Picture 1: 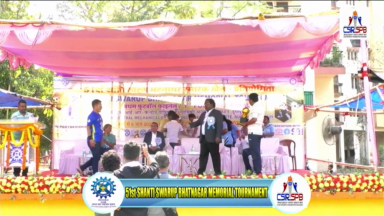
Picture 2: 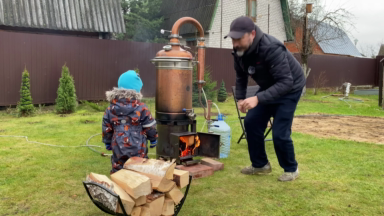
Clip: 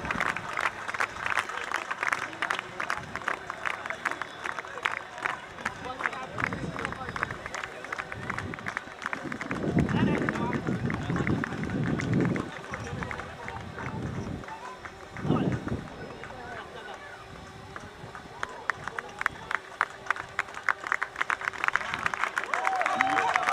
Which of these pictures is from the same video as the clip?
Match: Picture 1